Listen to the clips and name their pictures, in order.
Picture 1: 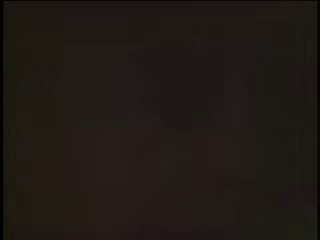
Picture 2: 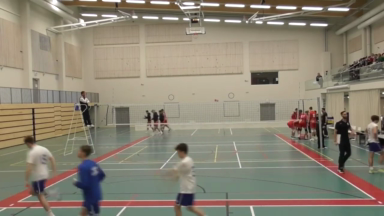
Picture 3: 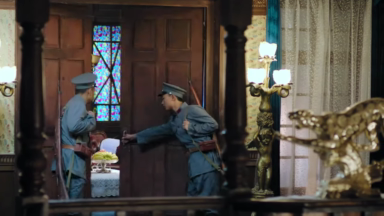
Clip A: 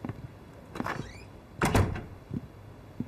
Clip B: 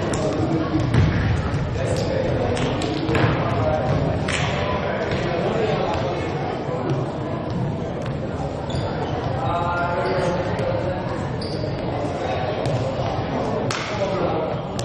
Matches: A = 3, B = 2